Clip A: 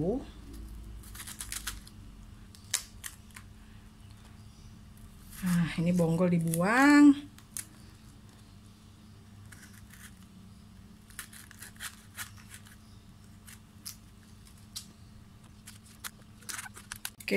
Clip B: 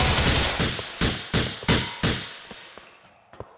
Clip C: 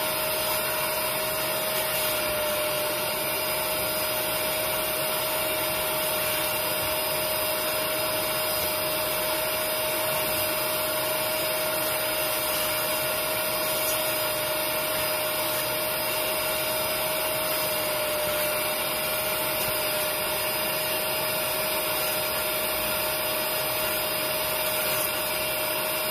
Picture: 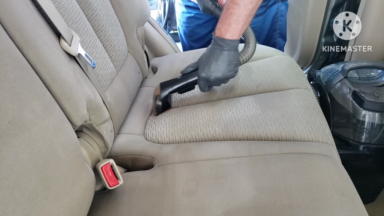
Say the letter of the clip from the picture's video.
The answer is C